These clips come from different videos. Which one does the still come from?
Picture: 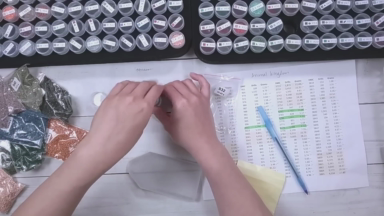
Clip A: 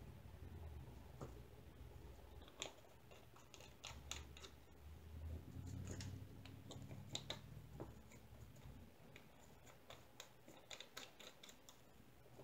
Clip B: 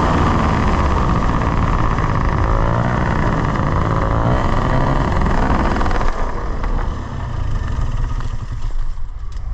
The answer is A